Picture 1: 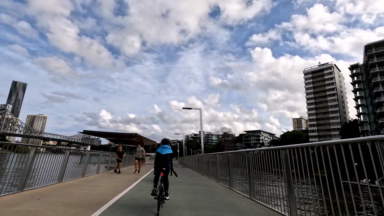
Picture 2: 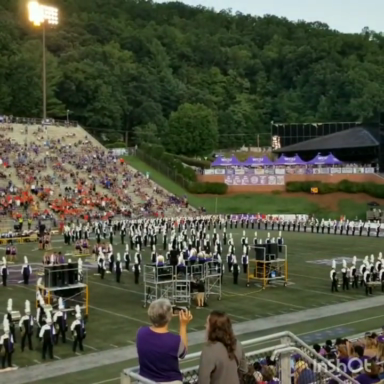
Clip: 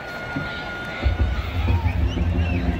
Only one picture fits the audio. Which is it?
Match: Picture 2